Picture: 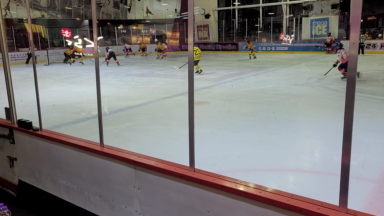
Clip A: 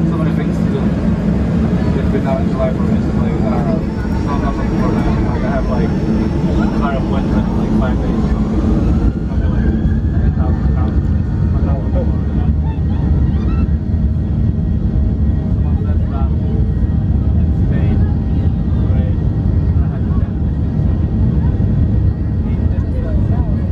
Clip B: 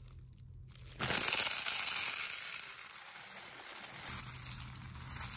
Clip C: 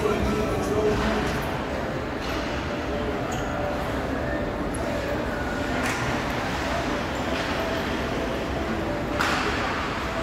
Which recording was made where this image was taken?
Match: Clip C